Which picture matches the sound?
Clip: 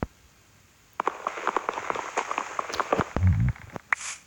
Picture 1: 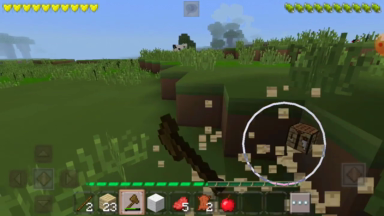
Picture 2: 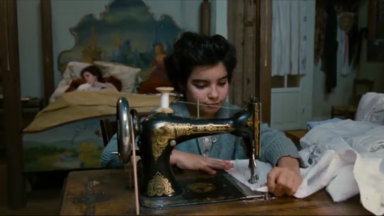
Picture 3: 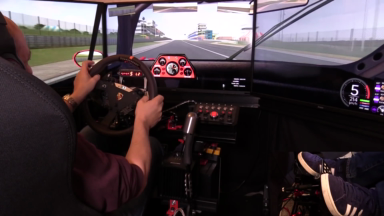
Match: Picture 1